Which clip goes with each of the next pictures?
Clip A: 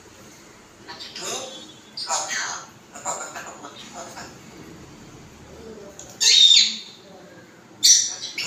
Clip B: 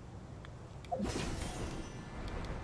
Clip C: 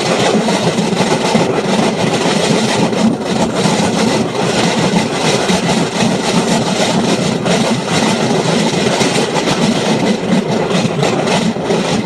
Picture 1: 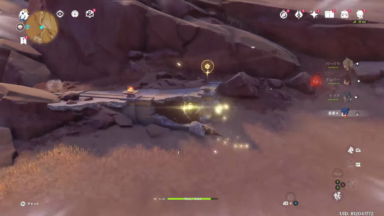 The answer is B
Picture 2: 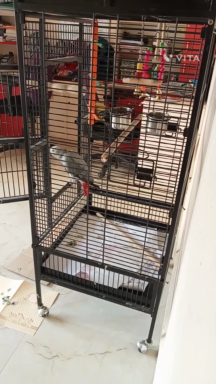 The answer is A